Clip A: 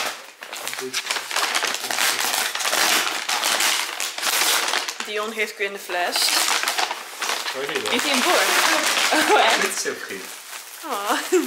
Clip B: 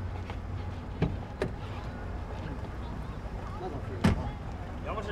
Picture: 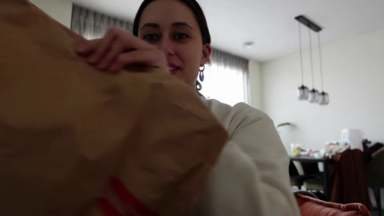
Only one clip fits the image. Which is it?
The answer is A